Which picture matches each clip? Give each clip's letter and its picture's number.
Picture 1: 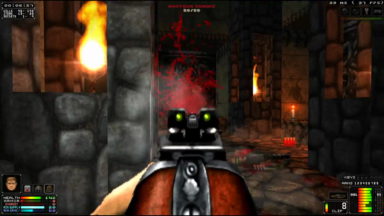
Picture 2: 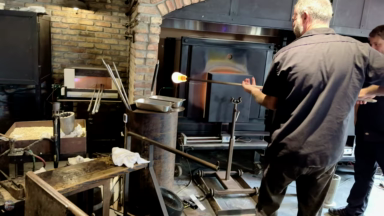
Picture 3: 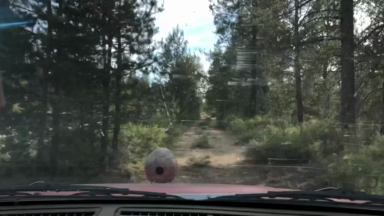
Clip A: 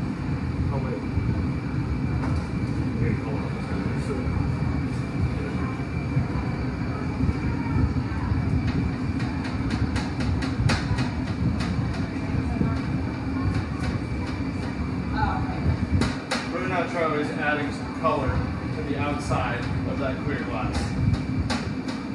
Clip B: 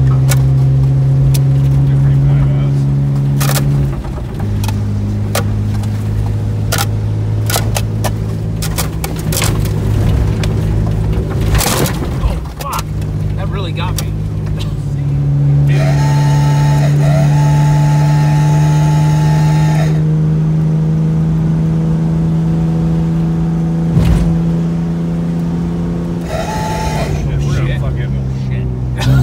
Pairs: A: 2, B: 3